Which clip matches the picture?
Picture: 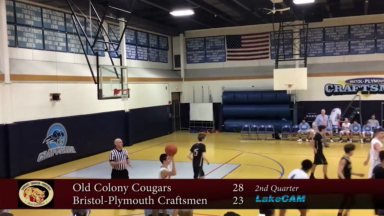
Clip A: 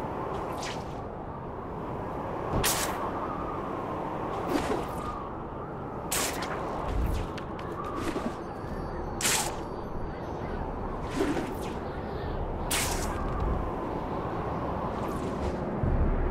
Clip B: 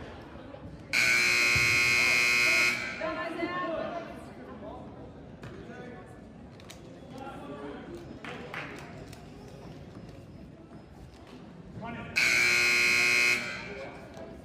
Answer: B